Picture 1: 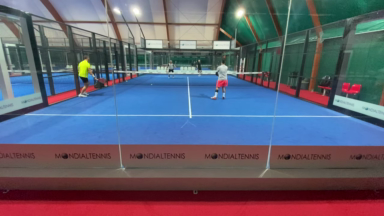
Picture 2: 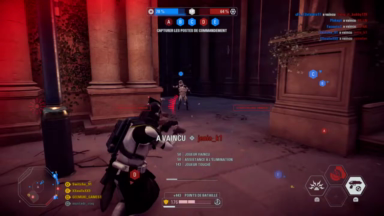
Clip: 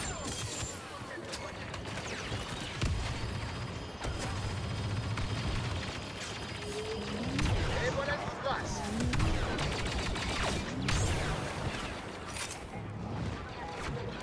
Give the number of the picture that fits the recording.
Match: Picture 2